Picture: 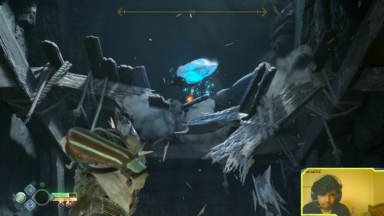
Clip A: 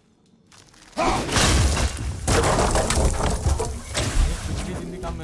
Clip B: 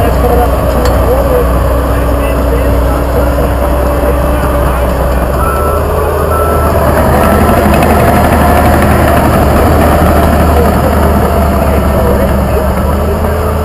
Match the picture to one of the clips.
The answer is A